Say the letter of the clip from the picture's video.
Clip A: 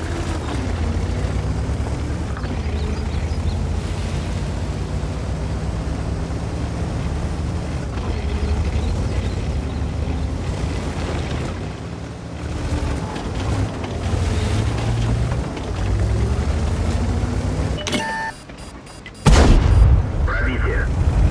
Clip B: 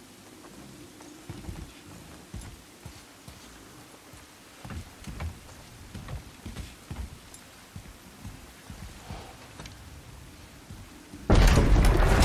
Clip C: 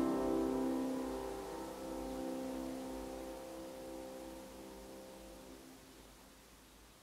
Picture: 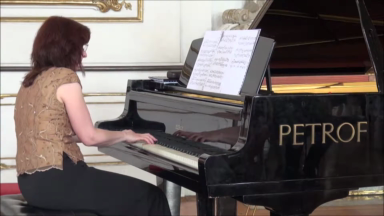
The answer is C